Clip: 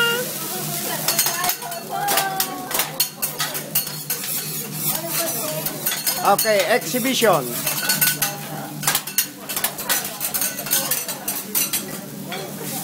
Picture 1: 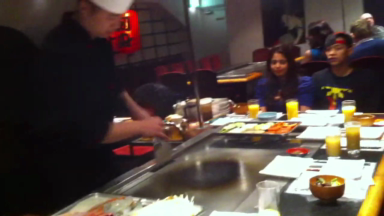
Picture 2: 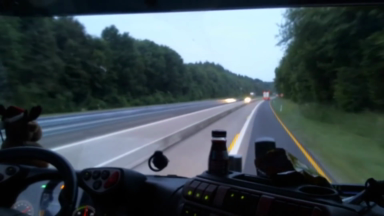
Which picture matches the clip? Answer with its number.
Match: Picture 1